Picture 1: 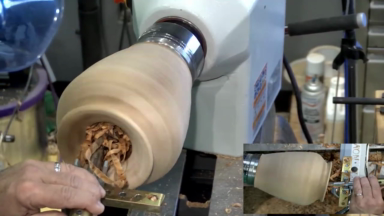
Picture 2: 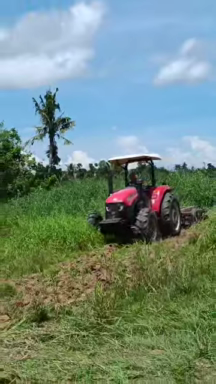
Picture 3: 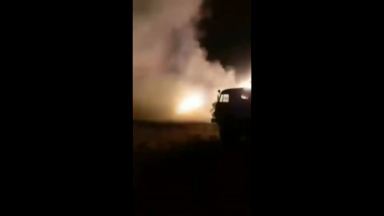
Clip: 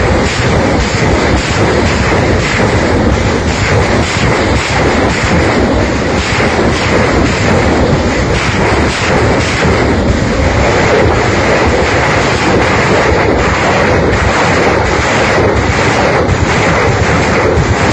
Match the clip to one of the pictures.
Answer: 3